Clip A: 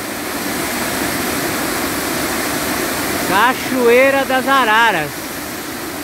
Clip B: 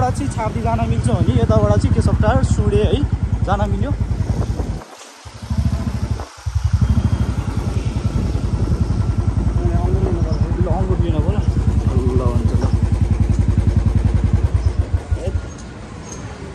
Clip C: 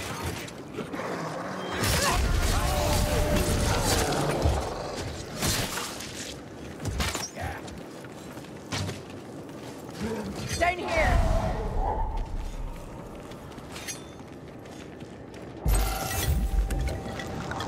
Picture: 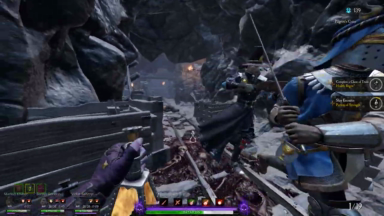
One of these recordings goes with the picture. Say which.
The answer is C